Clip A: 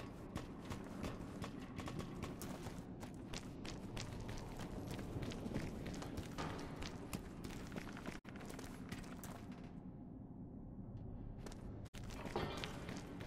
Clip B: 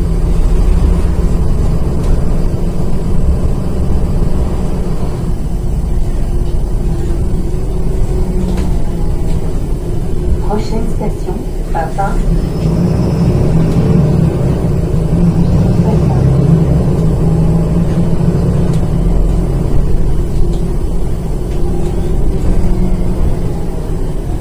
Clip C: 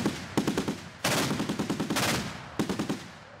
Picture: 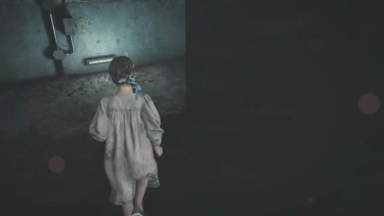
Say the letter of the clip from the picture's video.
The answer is A